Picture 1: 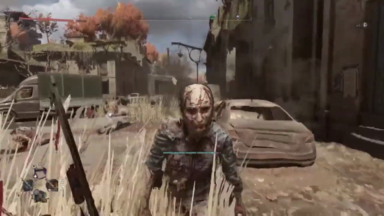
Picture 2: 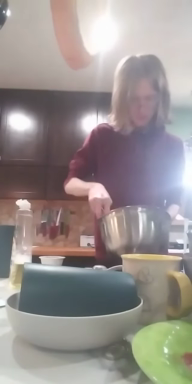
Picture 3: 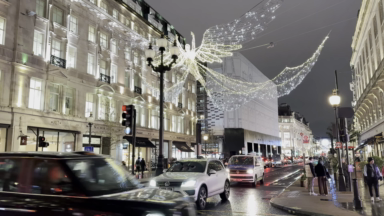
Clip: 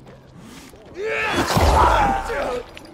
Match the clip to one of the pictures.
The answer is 1